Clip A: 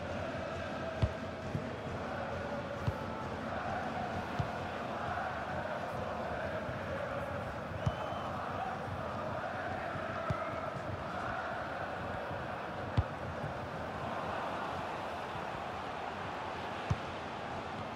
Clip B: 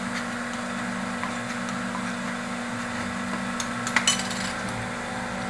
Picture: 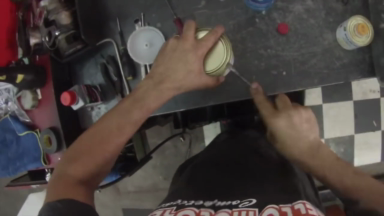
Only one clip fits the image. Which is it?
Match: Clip B